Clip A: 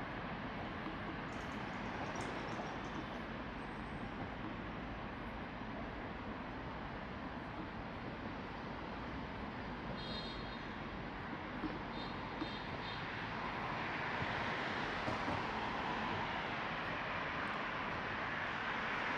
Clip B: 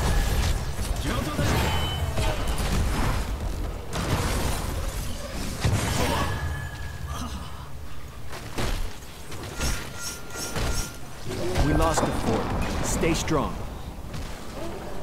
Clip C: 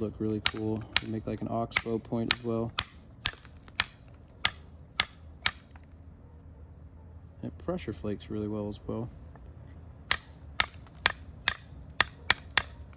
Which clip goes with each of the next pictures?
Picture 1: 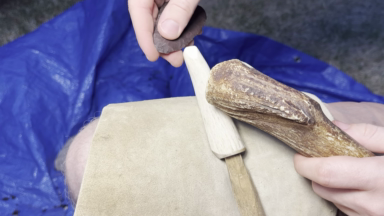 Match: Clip C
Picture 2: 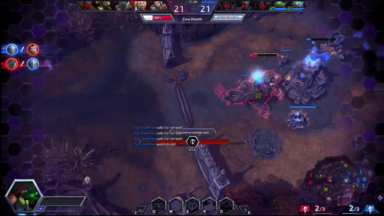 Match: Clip B